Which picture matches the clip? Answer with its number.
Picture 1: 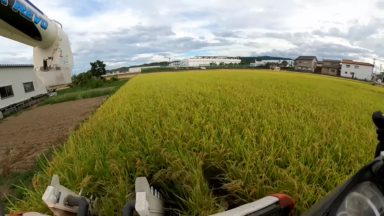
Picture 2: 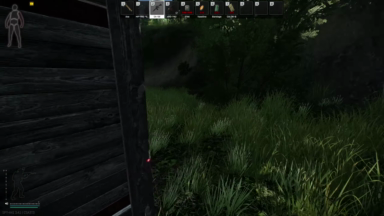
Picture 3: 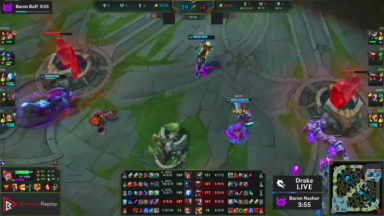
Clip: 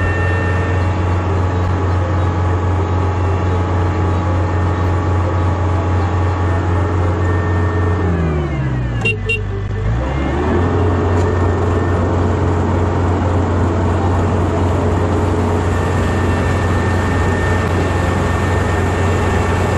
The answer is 1